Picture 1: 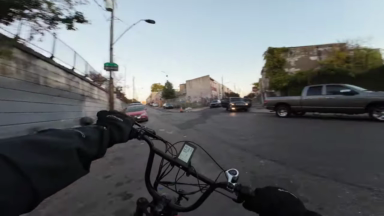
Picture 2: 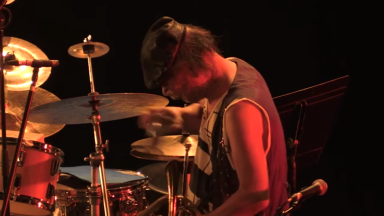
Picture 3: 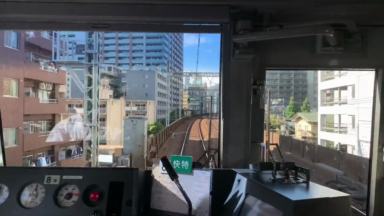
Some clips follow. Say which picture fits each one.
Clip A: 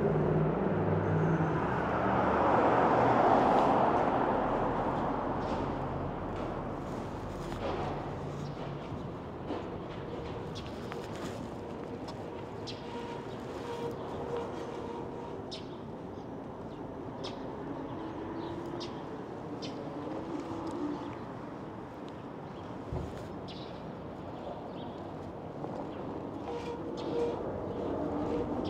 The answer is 1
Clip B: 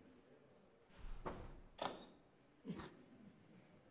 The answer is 2